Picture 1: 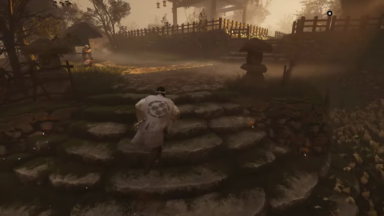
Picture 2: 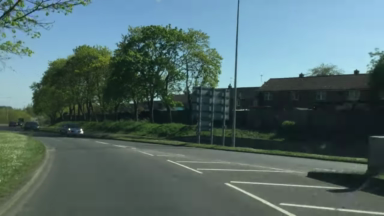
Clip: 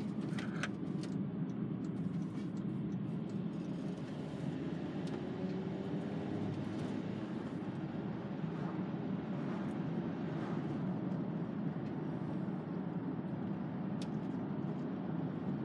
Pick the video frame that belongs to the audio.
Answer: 2